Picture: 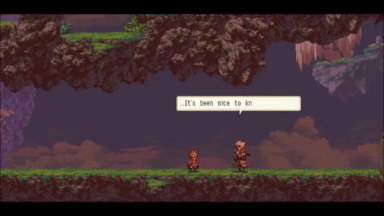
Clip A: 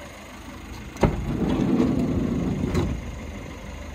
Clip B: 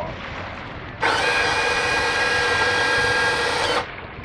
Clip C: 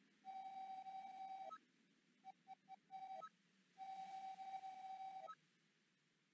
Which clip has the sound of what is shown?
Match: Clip C